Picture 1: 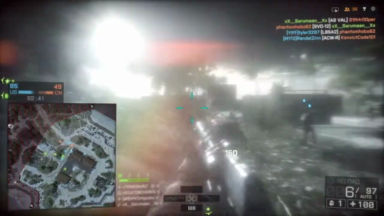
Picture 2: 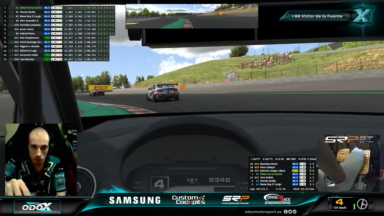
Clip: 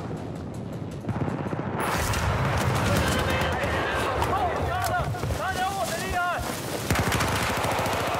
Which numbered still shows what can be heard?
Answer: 1